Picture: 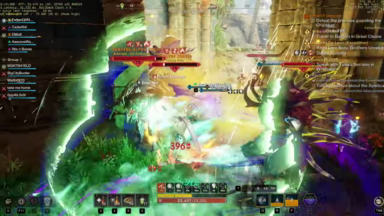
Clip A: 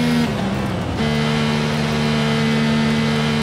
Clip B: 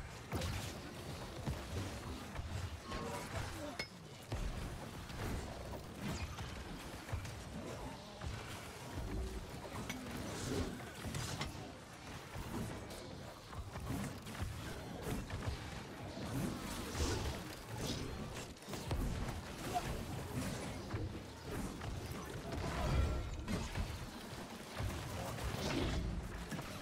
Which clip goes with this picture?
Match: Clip B